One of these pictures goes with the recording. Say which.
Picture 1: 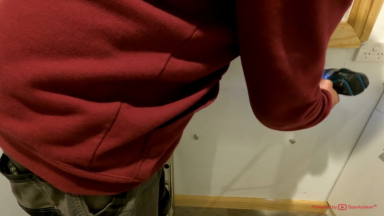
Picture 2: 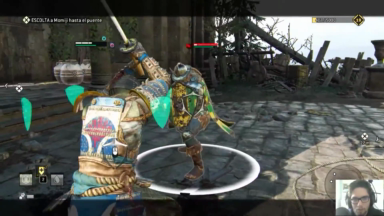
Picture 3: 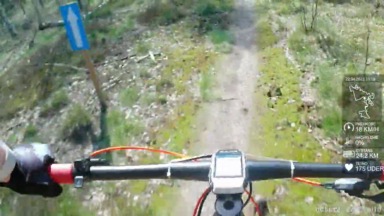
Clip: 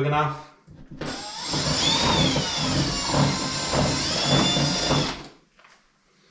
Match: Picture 1